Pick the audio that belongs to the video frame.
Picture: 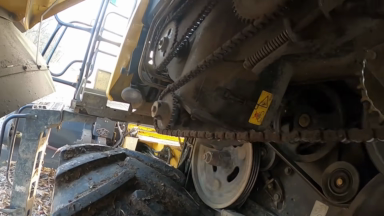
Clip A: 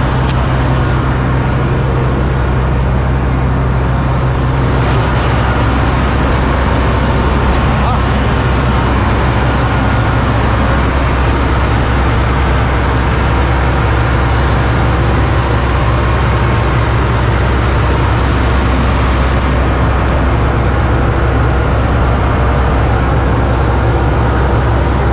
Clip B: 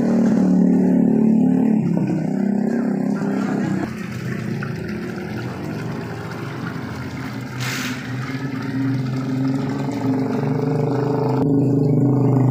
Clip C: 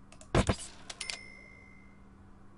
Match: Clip A